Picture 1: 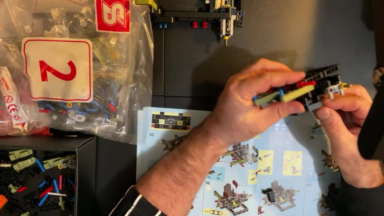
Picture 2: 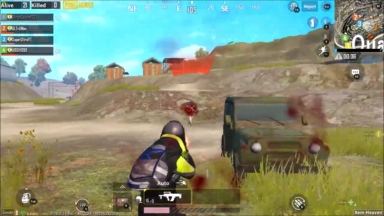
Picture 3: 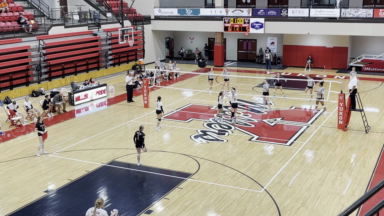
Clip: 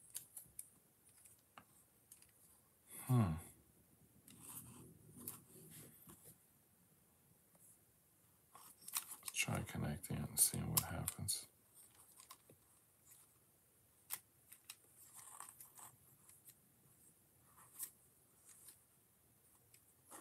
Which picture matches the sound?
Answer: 1